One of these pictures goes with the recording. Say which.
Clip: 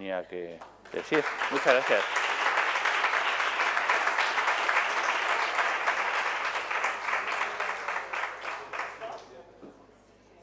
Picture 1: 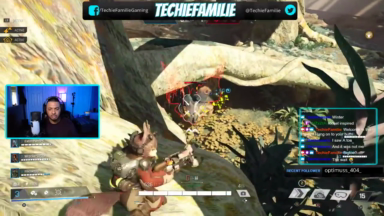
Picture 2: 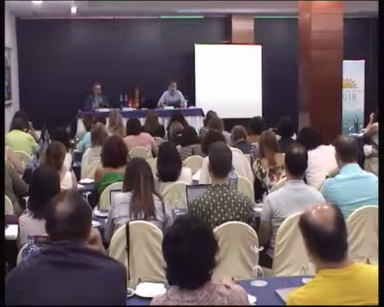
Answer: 2